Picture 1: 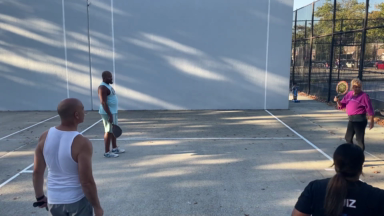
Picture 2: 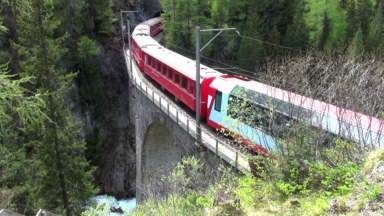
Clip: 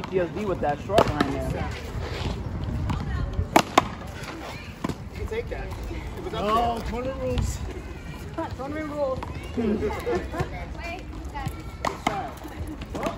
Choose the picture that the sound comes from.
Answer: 1